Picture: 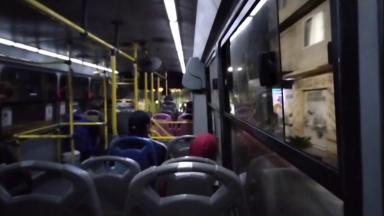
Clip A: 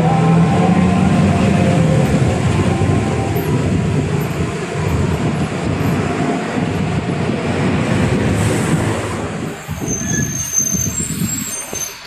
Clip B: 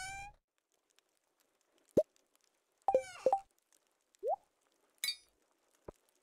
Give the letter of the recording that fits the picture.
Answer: A